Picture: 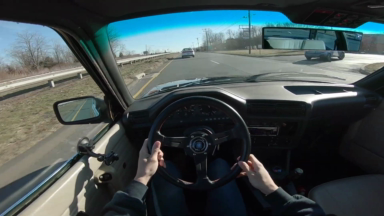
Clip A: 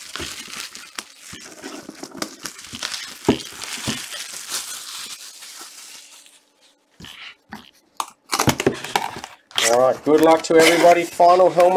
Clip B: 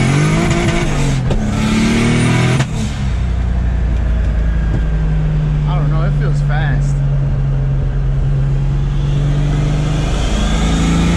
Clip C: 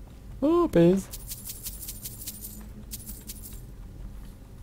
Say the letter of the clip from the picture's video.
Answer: B